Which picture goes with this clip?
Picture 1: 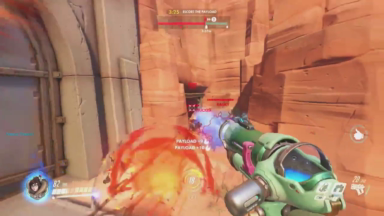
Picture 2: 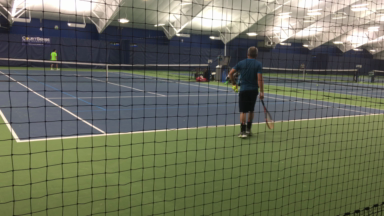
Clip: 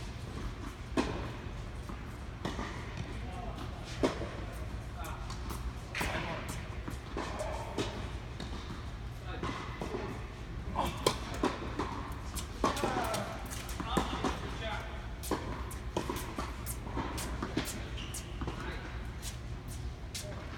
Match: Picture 2